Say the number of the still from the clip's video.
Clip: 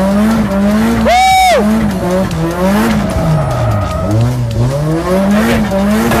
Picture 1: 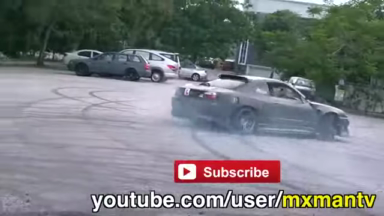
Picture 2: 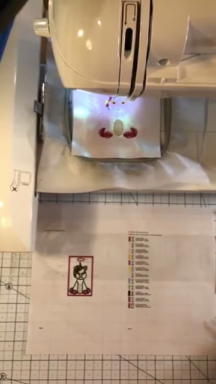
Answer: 1